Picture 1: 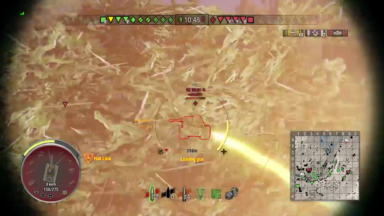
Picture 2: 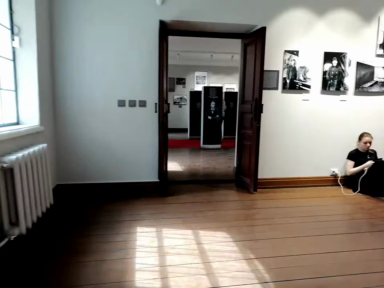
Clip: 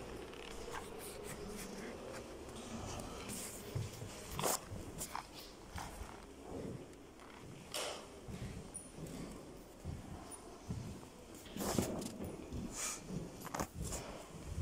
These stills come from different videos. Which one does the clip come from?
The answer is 2